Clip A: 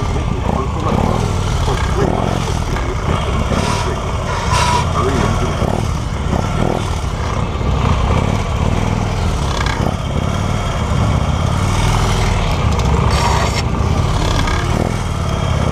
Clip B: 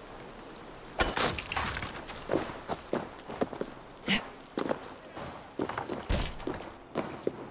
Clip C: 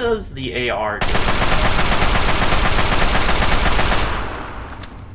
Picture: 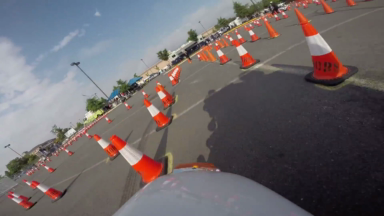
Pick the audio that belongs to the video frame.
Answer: A